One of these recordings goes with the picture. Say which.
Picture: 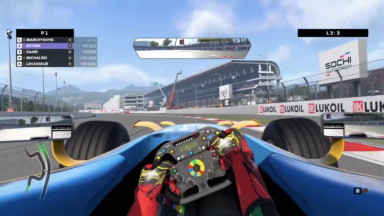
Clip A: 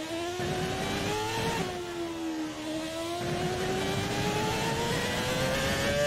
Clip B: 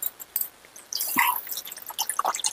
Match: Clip A